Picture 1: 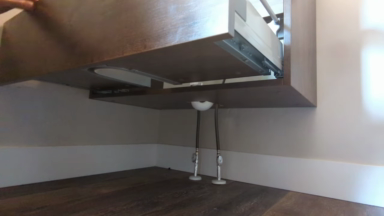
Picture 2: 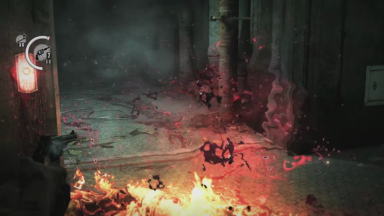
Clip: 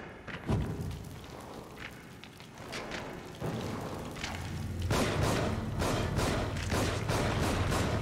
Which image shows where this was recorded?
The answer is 2